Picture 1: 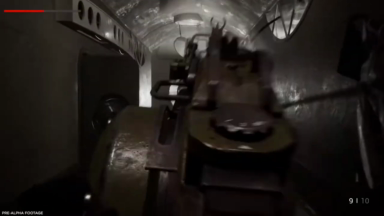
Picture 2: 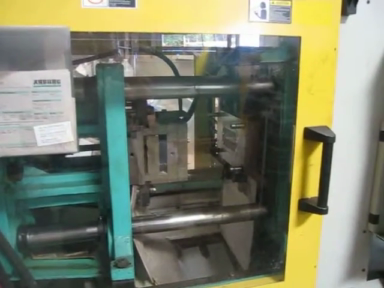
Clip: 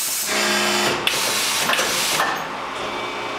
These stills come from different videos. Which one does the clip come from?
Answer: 2